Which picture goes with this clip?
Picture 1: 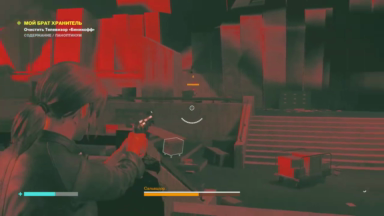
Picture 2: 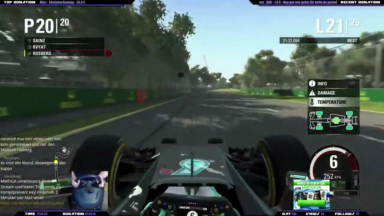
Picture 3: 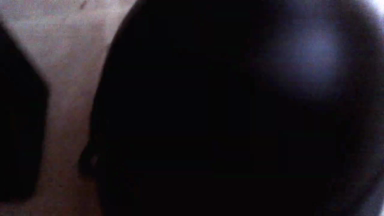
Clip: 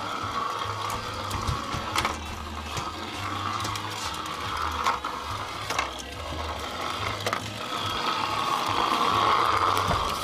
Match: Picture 3